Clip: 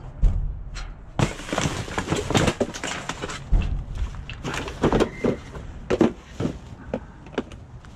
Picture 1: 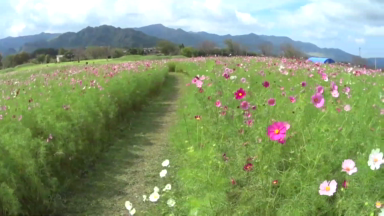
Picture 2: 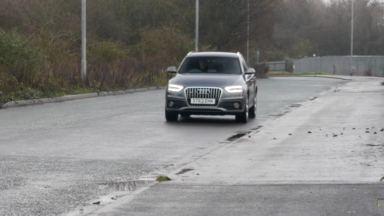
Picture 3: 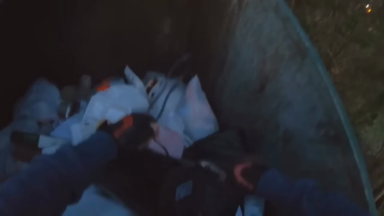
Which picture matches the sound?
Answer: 3